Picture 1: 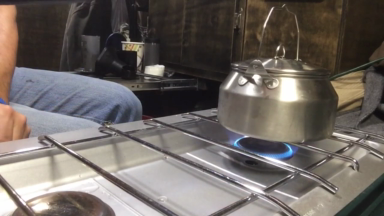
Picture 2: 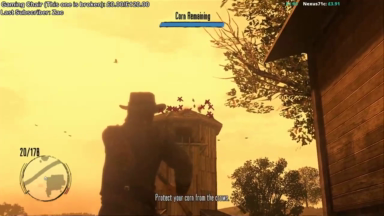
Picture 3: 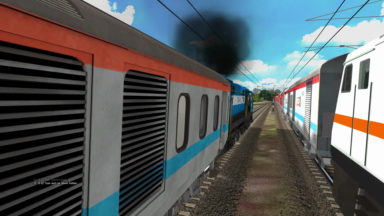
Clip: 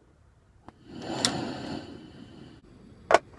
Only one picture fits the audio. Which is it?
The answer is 1